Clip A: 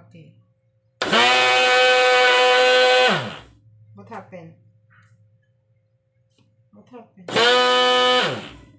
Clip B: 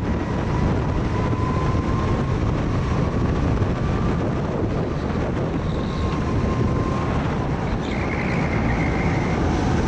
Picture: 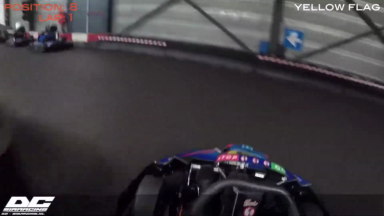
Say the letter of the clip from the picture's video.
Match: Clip B